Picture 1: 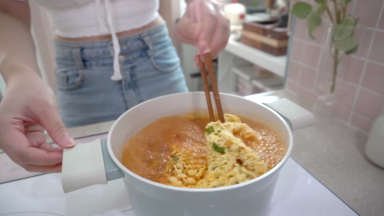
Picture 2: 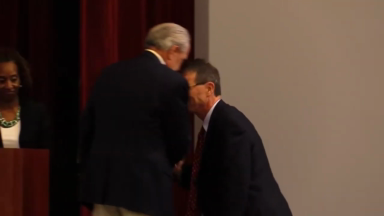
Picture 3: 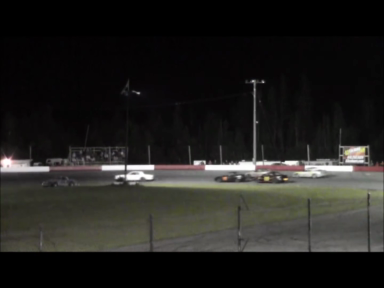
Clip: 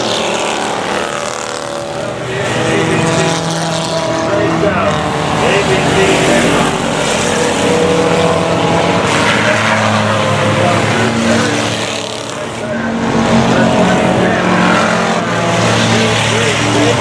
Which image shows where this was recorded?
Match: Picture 3